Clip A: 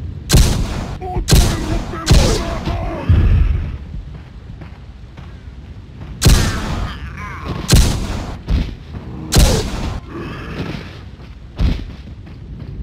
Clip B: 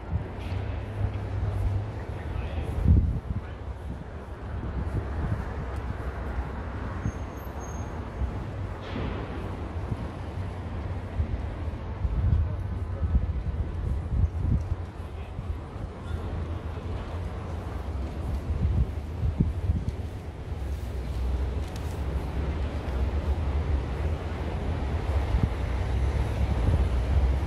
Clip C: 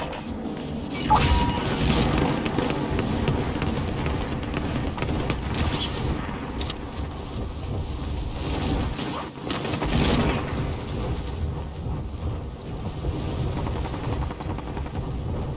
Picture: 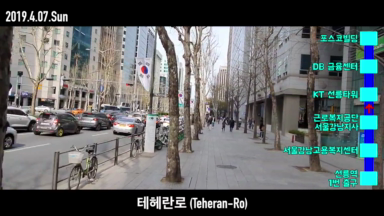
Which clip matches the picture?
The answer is B